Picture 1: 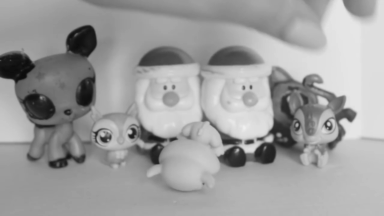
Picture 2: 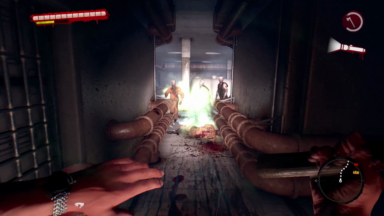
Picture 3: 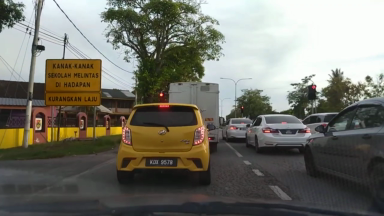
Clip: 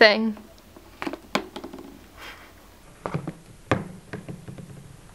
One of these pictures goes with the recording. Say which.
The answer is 1